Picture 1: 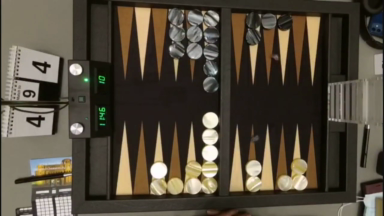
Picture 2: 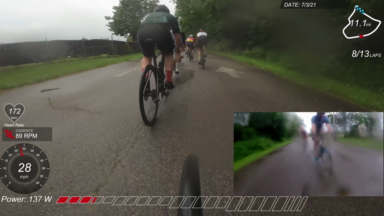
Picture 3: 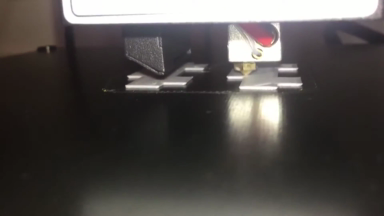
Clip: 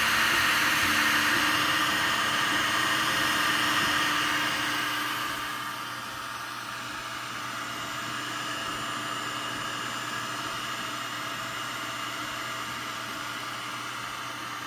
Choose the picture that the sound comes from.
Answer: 3